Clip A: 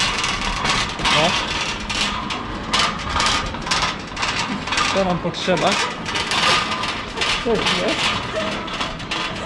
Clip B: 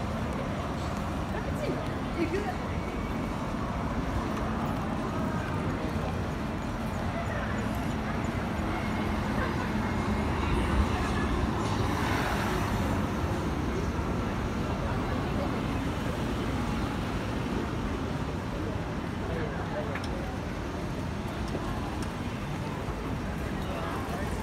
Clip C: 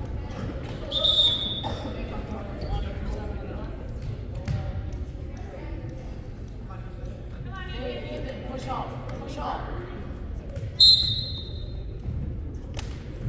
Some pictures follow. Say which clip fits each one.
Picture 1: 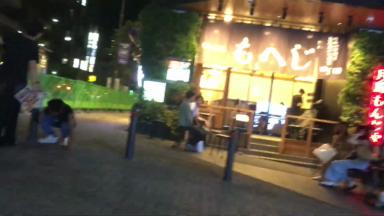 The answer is B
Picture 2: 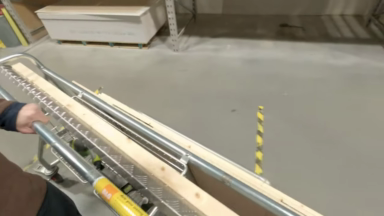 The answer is A